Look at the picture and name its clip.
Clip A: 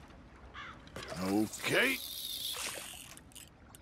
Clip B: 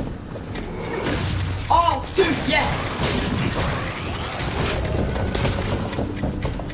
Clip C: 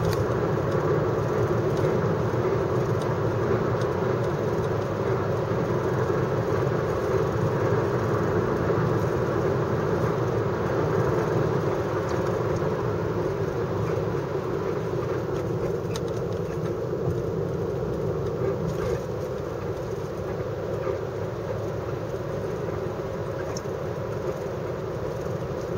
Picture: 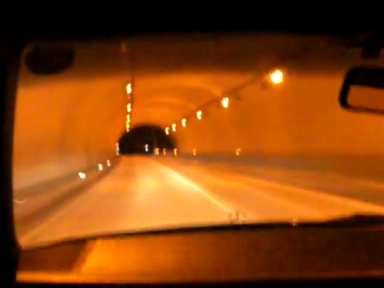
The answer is C